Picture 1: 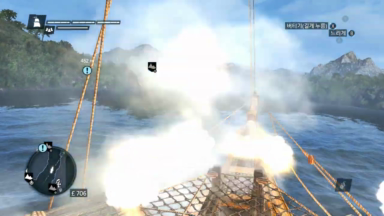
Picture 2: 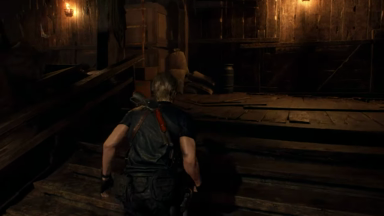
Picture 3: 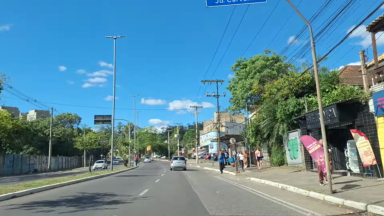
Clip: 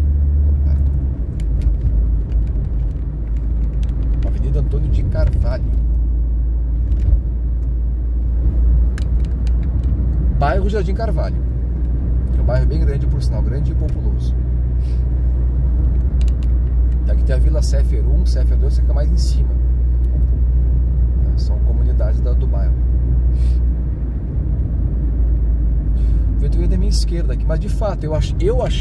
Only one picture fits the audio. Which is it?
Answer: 3